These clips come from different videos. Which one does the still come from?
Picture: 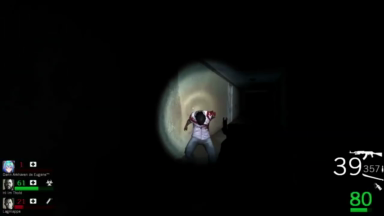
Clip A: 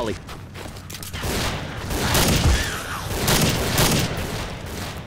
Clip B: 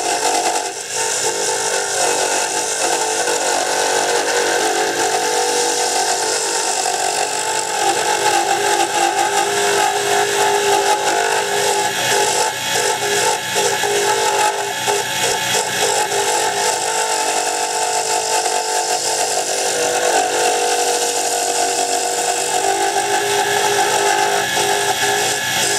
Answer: A